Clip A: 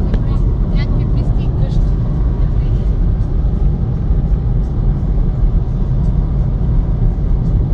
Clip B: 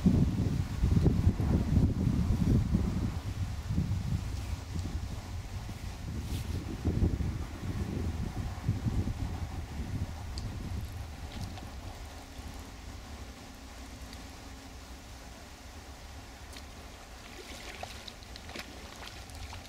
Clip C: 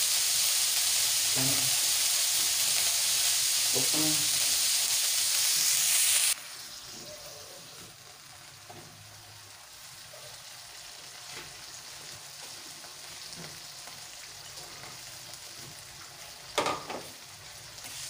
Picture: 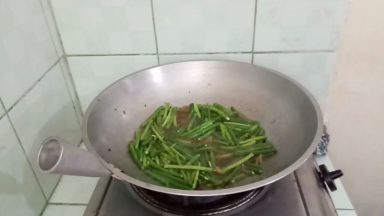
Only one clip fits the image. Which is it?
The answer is C